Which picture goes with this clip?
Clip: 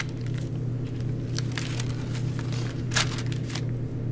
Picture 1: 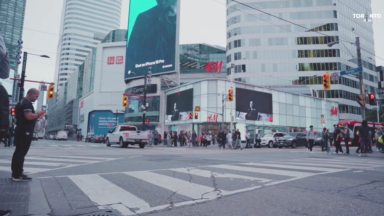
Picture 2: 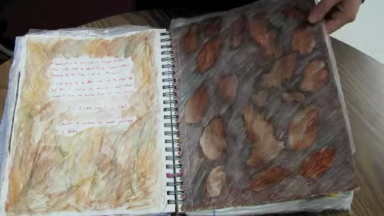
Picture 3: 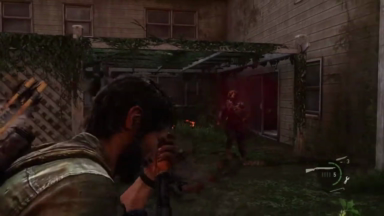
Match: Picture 2